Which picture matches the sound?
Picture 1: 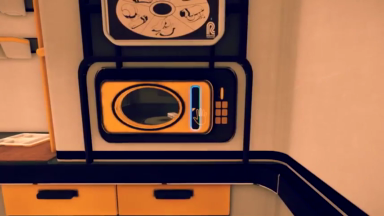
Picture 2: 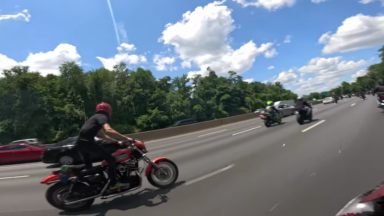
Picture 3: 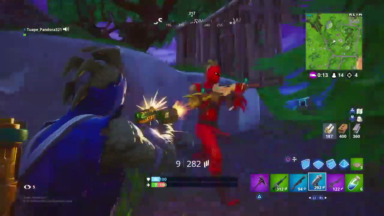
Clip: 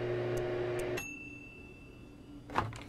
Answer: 1